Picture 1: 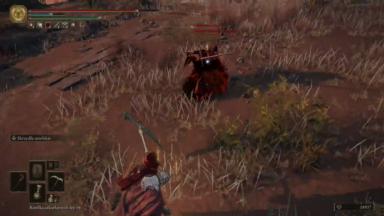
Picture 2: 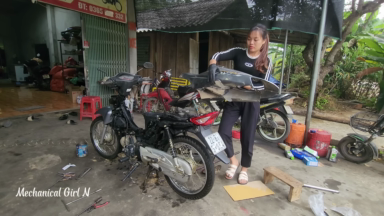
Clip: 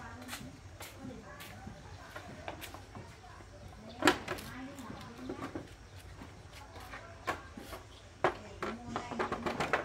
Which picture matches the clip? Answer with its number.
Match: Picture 2